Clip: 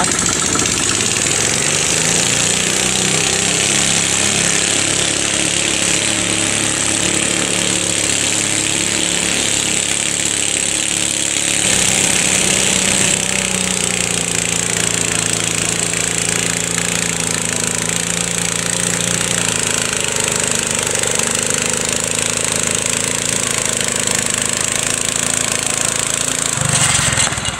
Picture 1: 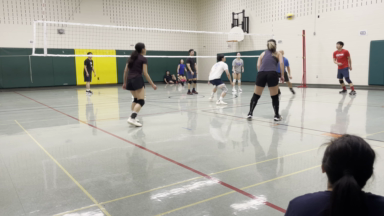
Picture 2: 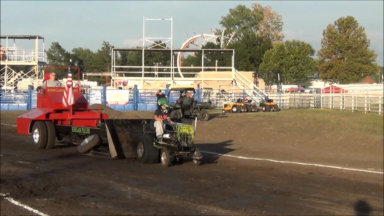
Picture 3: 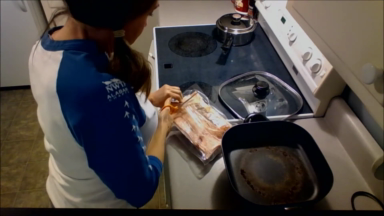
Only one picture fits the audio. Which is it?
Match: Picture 2